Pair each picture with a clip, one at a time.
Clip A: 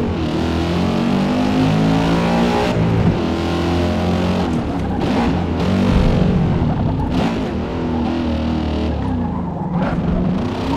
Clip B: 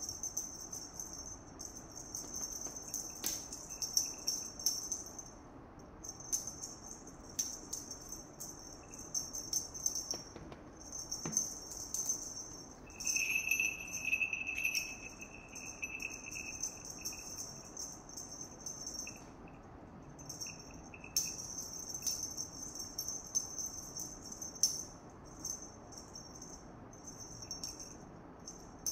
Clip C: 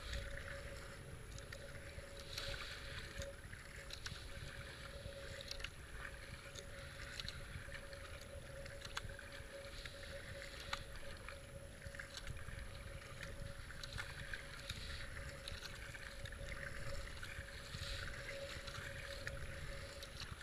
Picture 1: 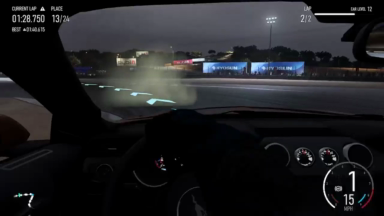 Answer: A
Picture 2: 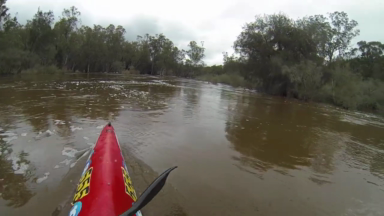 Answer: C